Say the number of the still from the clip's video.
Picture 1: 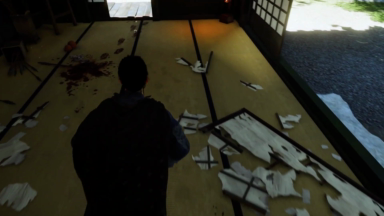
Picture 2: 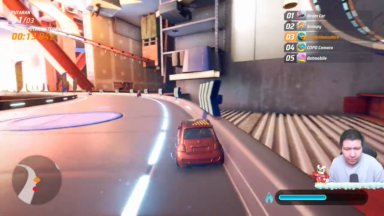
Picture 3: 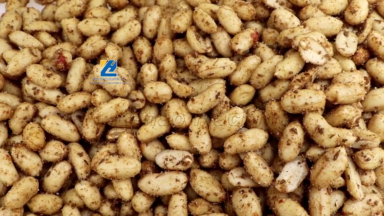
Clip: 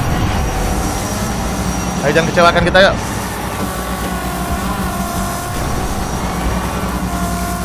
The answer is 2